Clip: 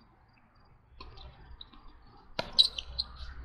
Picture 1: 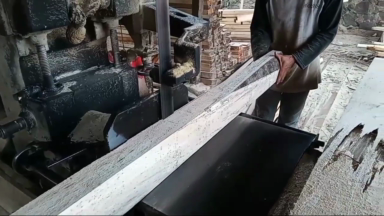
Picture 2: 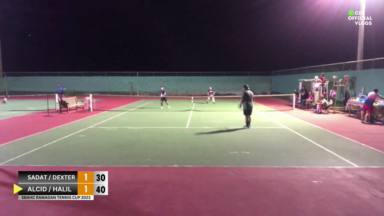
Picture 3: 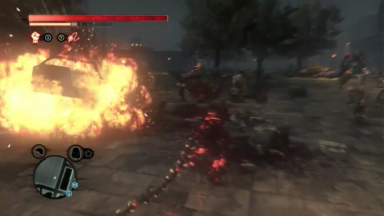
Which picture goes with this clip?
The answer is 2